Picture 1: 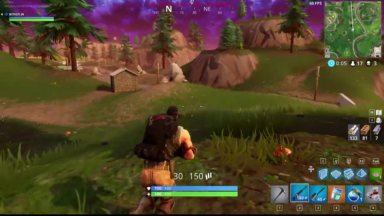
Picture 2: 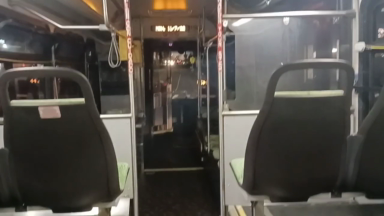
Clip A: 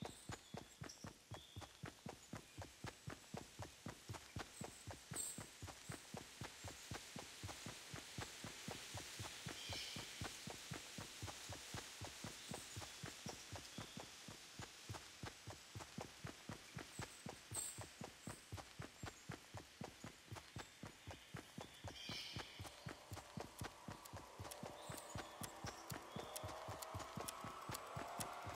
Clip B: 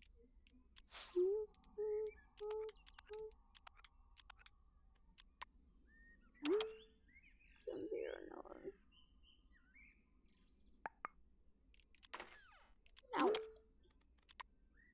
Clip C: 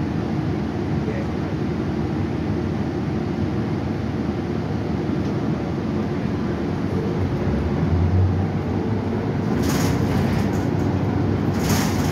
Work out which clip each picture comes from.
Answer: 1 A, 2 C